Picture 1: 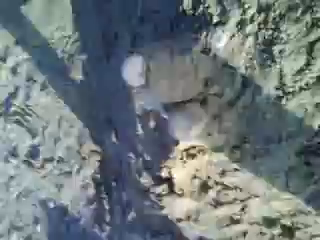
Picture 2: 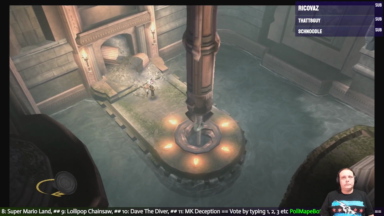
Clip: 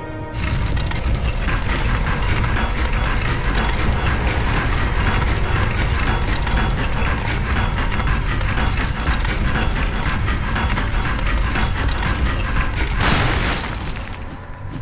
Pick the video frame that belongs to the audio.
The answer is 2